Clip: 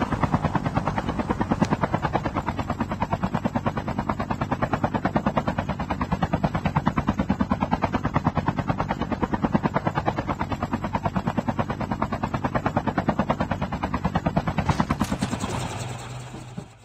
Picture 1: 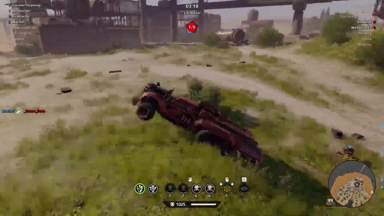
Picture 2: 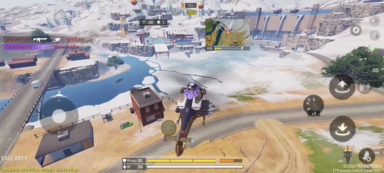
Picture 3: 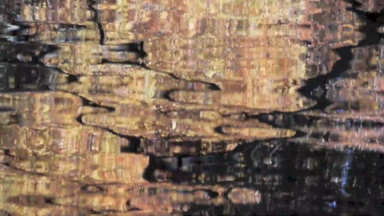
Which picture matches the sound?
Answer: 2